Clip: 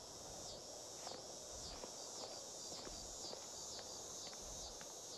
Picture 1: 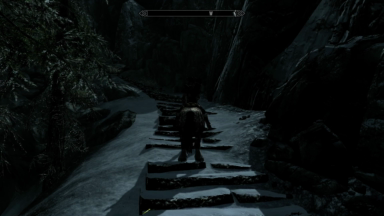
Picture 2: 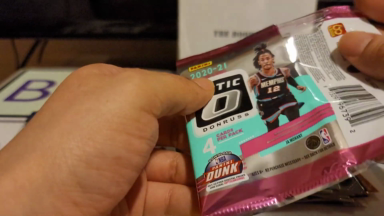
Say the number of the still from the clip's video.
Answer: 1